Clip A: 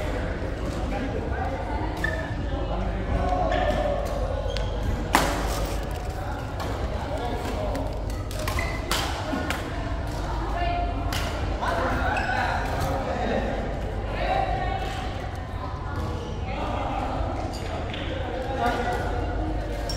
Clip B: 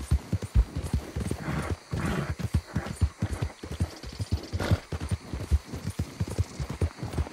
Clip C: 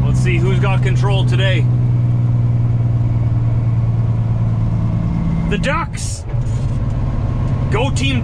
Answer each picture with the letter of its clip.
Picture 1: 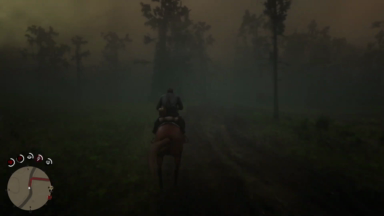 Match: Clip B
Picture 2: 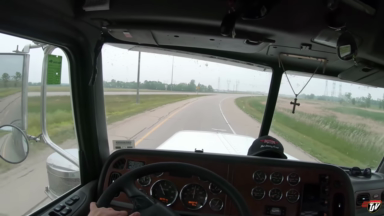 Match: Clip C